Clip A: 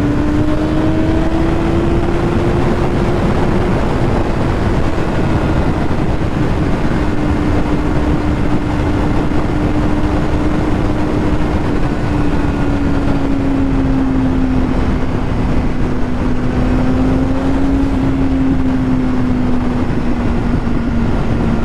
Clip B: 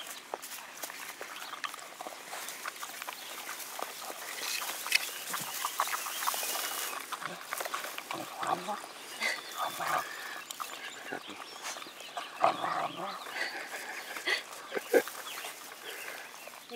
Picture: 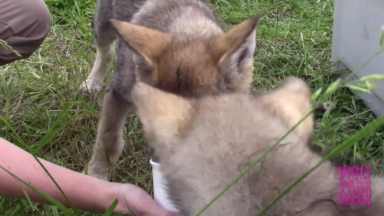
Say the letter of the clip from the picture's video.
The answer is B